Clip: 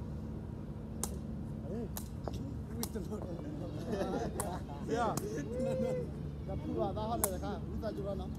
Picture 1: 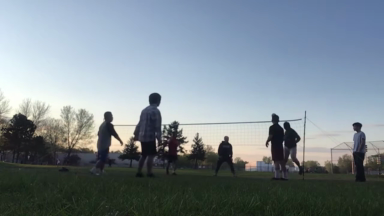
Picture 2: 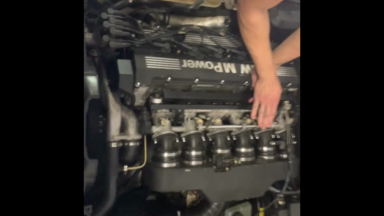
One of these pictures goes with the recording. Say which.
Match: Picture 1